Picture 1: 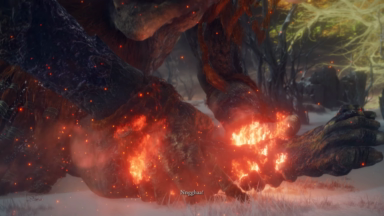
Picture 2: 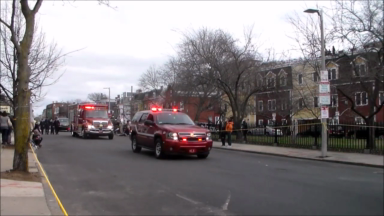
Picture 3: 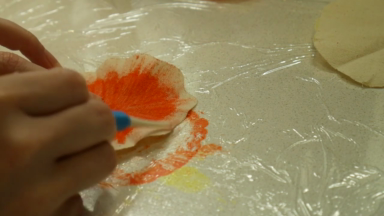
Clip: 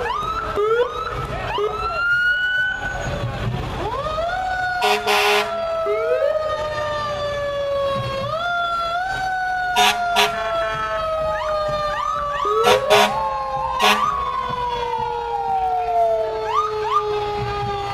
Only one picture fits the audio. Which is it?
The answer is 2